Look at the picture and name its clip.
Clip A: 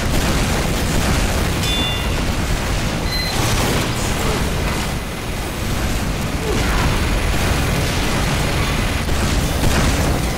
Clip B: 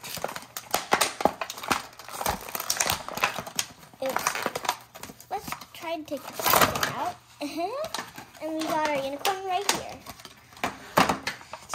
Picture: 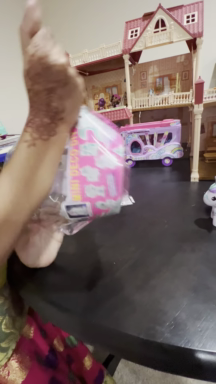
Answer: B